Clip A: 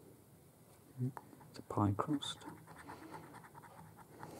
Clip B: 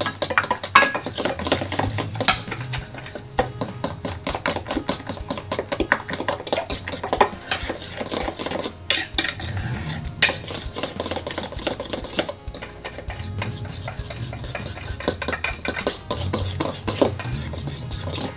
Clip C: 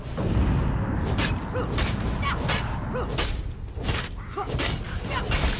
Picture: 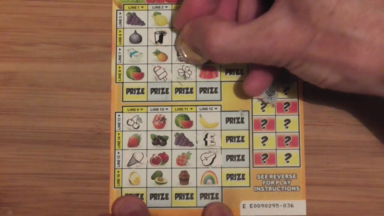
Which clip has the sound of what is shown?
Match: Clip A